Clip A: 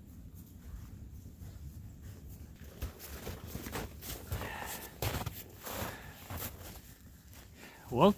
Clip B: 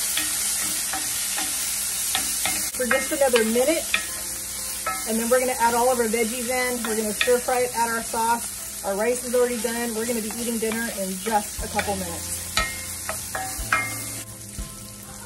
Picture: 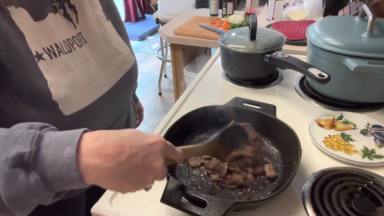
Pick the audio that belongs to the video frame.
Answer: B